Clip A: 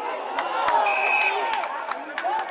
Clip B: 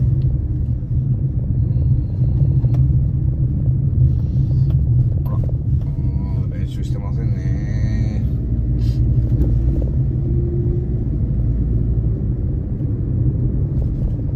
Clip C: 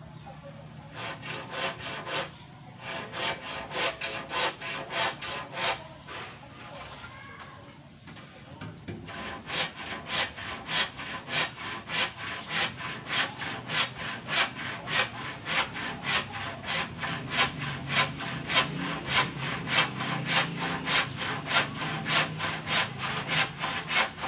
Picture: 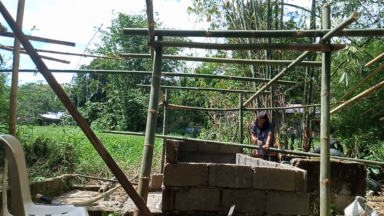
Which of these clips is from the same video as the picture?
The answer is C